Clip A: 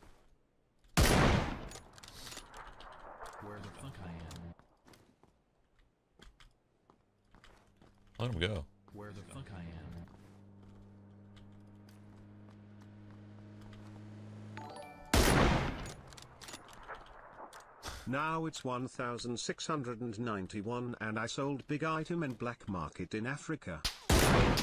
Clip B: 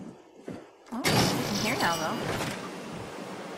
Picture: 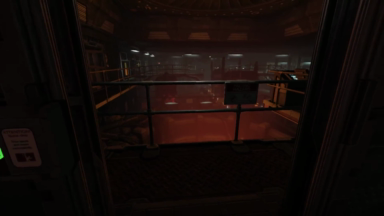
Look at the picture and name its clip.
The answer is B